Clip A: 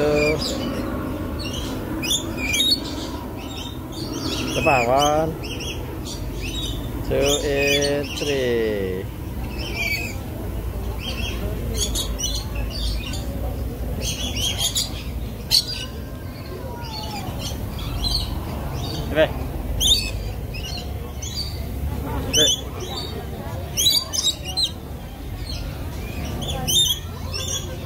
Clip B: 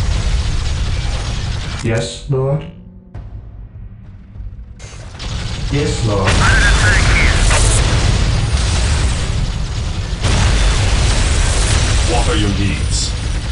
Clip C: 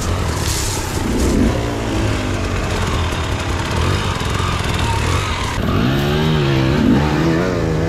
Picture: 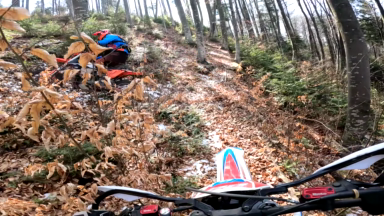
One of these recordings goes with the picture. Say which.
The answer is C